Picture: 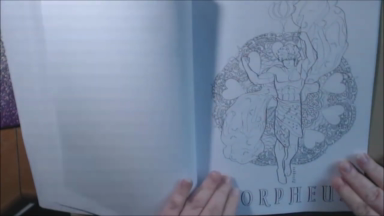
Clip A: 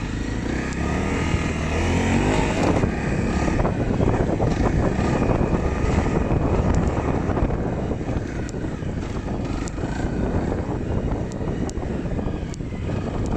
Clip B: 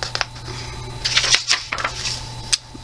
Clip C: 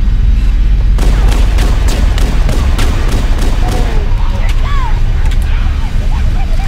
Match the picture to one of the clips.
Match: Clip B